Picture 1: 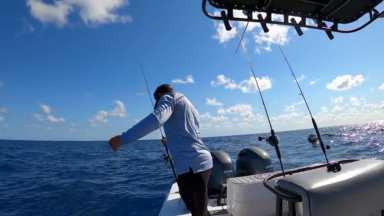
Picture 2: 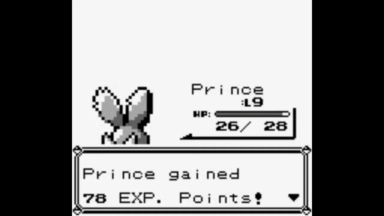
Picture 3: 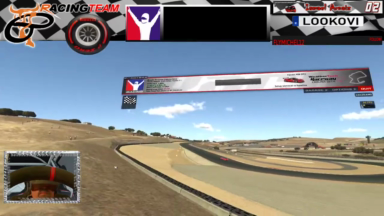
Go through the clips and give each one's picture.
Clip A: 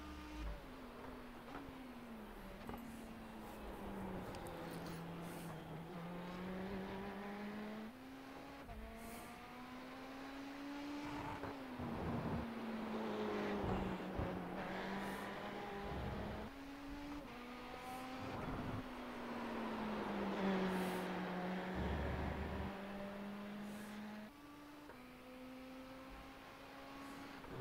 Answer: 3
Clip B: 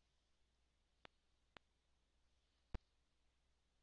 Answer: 2